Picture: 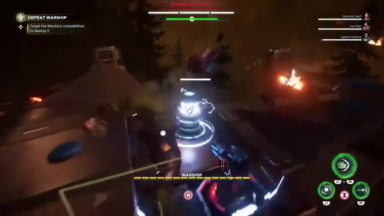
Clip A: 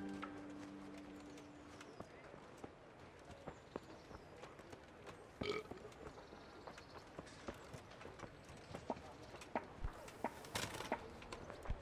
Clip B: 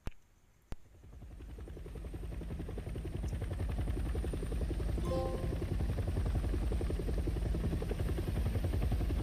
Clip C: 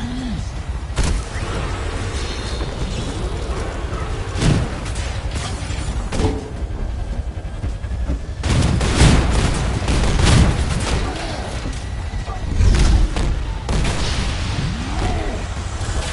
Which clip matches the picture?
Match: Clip C